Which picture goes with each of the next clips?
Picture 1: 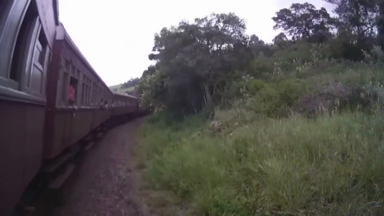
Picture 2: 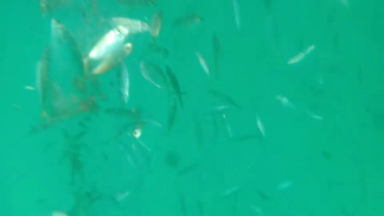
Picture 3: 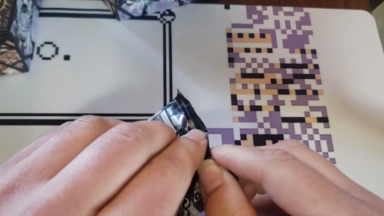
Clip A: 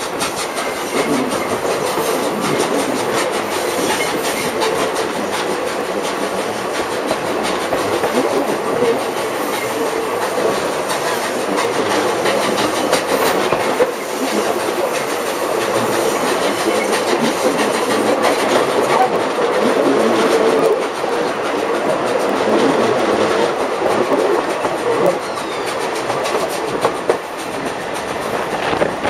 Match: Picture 1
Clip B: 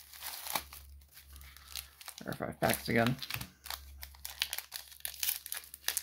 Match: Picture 3